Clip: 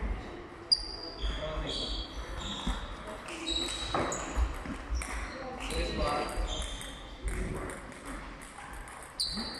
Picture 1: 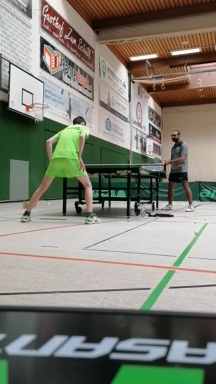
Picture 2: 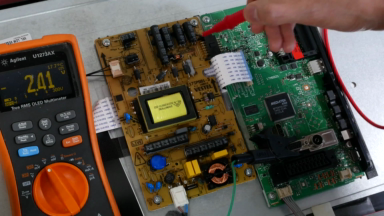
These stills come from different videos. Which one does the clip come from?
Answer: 1